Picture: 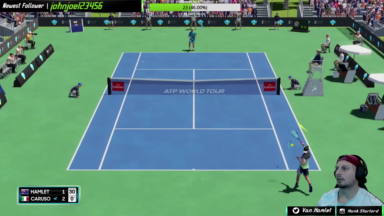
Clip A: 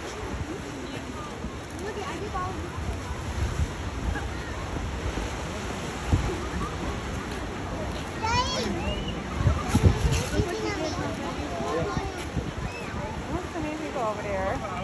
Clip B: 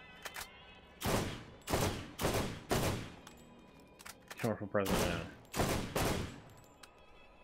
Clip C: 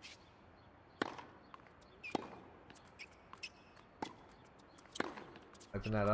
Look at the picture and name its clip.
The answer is C